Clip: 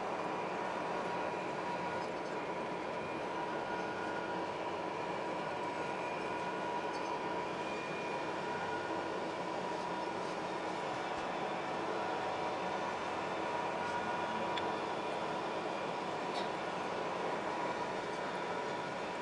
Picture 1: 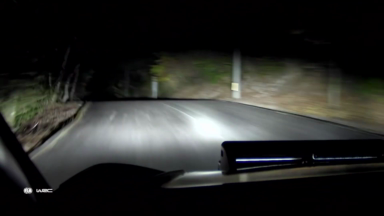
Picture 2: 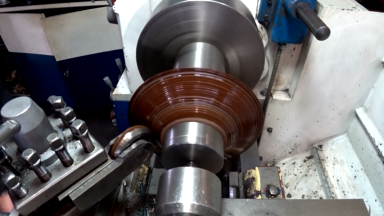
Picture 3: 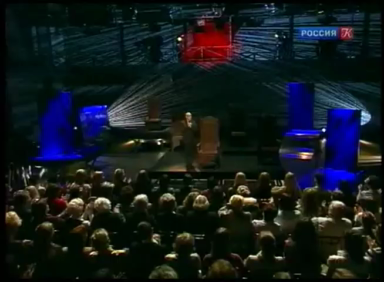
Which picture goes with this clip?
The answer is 2